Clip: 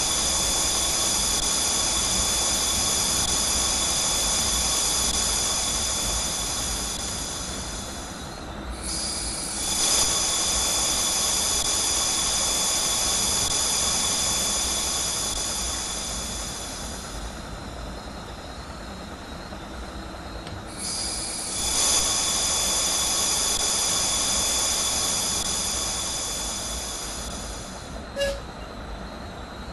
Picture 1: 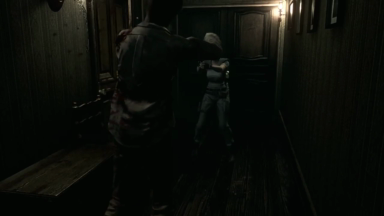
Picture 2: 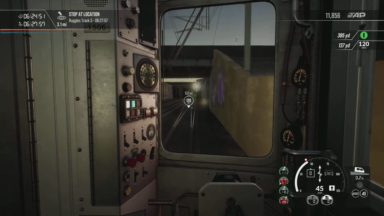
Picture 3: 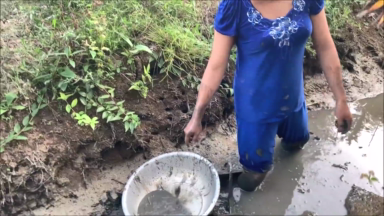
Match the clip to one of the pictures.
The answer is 2